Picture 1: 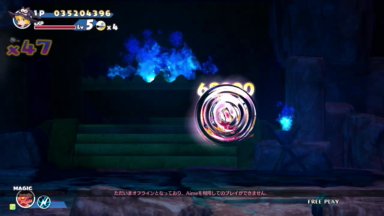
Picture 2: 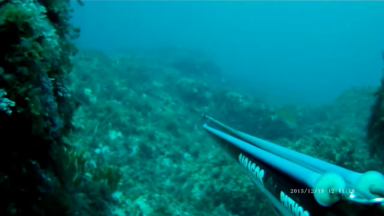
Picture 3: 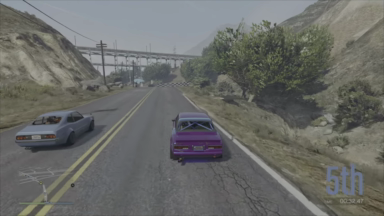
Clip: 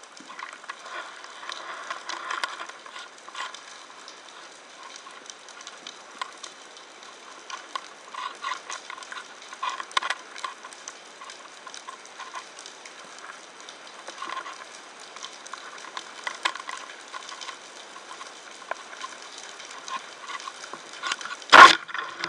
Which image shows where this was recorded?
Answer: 2